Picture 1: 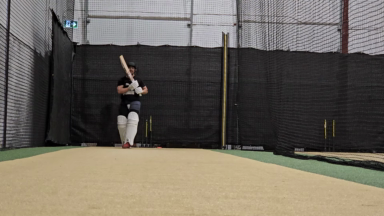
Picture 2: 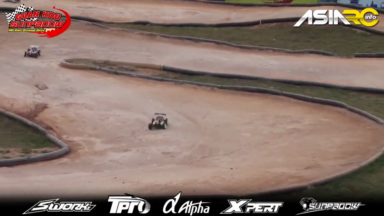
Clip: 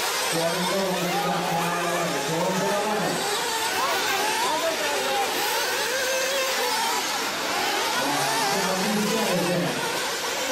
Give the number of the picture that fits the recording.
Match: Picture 2